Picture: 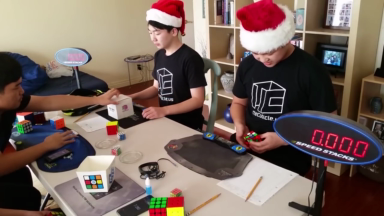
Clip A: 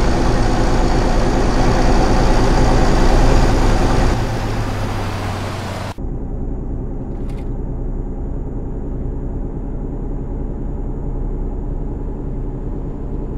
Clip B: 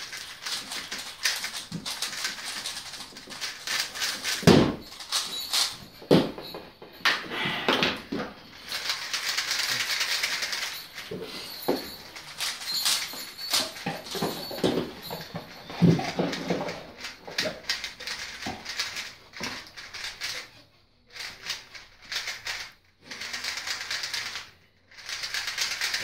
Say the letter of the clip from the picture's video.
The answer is B